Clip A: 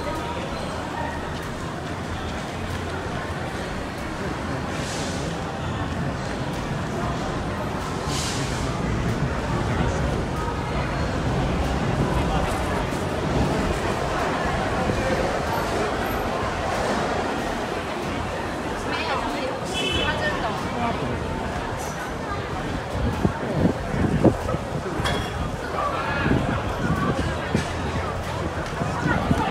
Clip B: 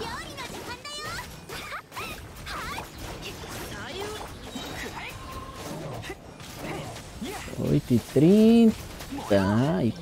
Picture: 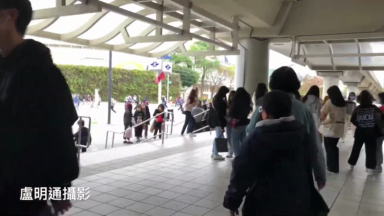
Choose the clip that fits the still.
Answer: A